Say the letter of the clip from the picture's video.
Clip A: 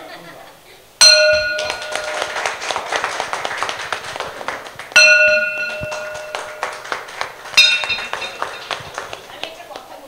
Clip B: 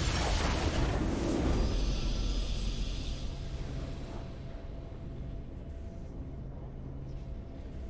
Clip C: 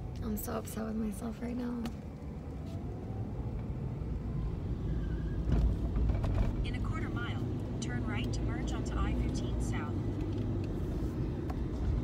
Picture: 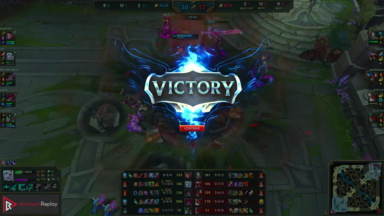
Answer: B